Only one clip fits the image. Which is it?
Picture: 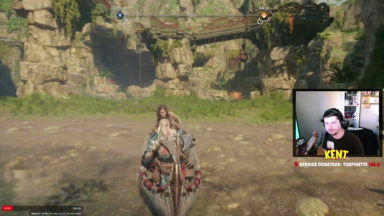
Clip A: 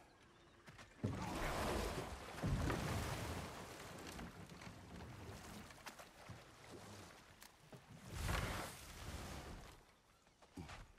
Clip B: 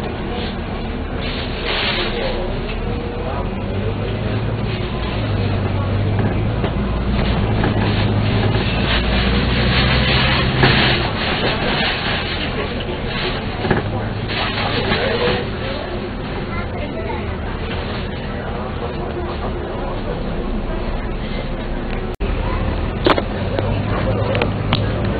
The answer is A